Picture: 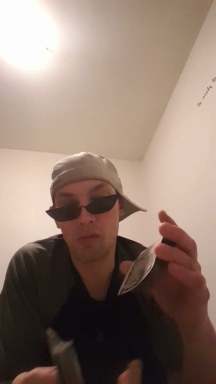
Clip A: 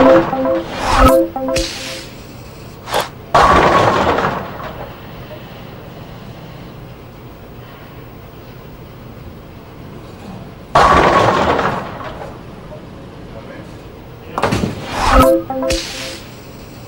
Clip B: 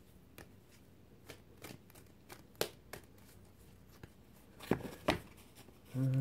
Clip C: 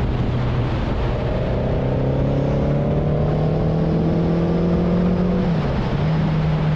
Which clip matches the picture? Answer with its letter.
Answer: B